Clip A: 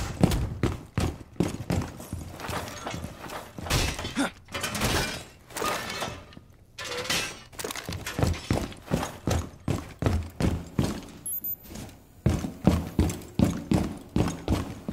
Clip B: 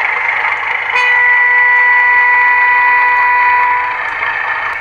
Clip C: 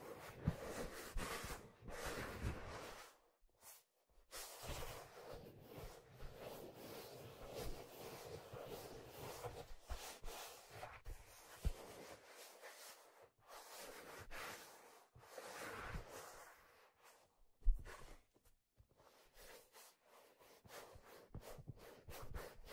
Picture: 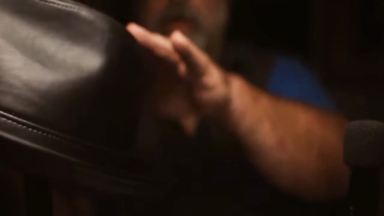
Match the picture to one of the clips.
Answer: C